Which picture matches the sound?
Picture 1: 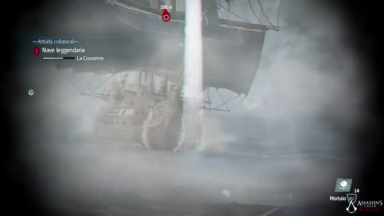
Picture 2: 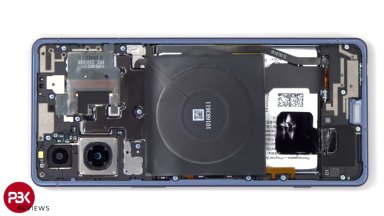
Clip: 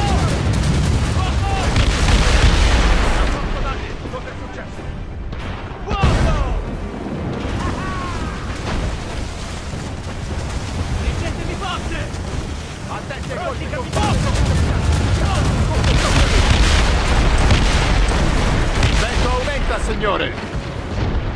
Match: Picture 1